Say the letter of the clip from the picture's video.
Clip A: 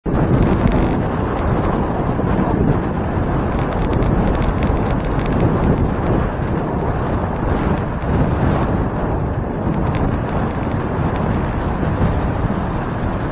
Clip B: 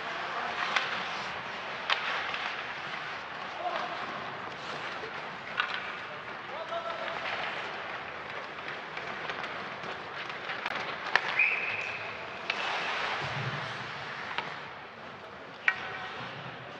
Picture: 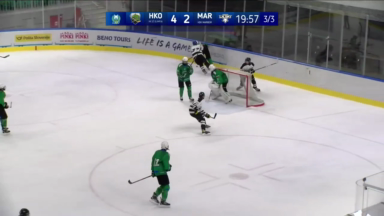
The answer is B